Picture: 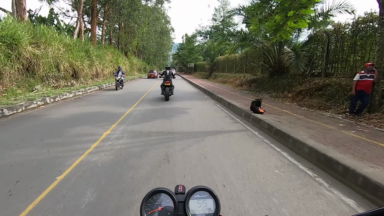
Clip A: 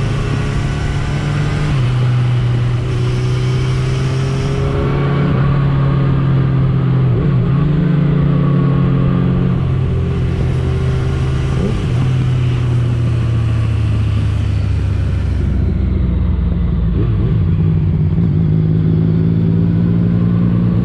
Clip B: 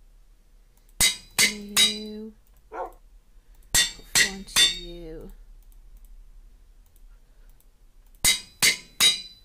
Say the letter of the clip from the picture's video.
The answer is A